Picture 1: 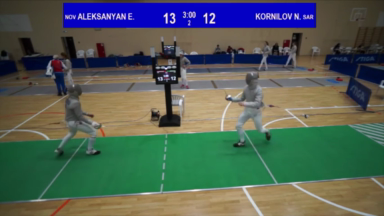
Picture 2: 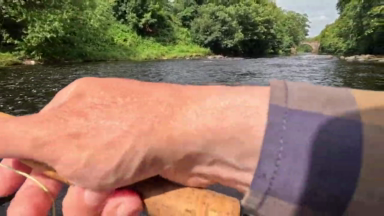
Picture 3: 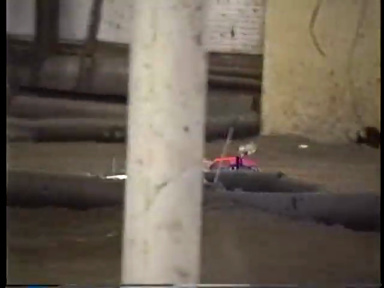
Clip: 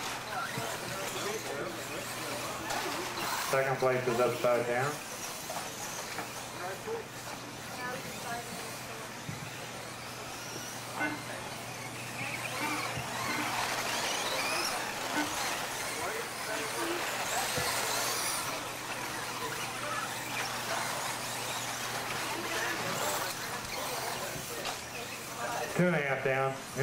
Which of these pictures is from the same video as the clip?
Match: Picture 3